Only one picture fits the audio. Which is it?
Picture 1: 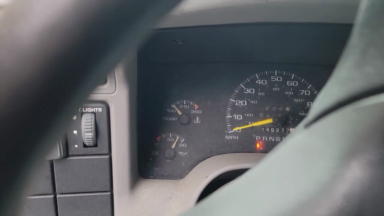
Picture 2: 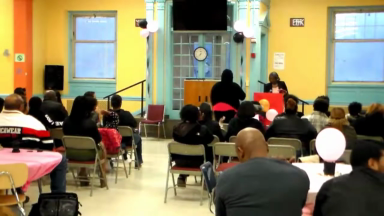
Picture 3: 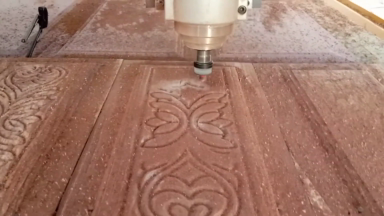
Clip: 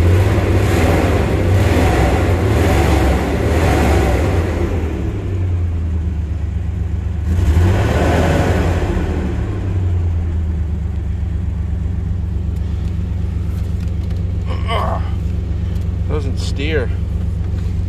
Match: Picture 1